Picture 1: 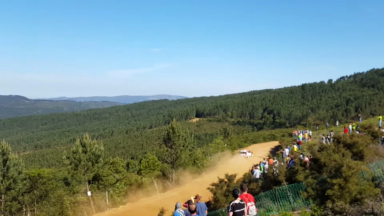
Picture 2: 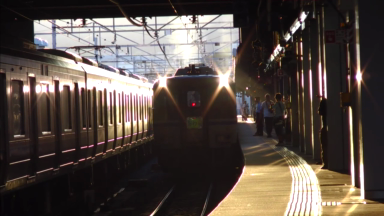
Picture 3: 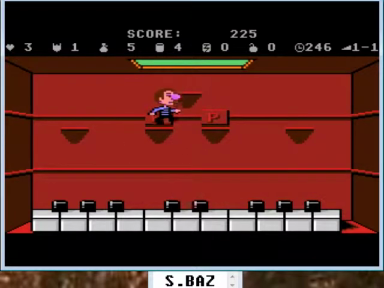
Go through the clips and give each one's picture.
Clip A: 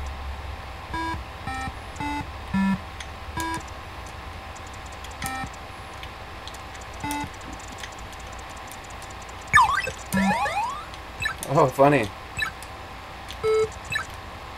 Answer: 3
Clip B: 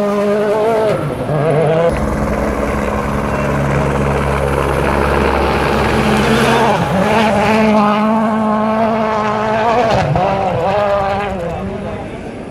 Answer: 1